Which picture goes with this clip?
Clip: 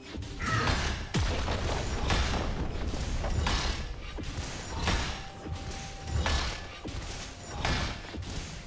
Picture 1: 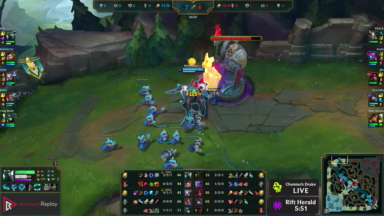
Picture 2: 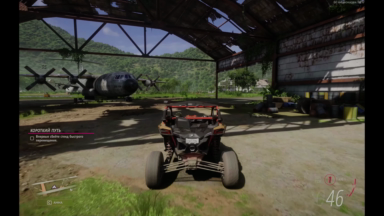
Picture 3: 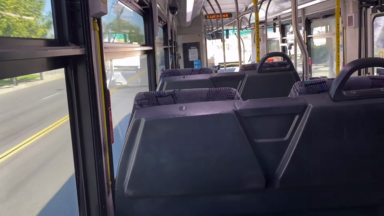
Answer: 1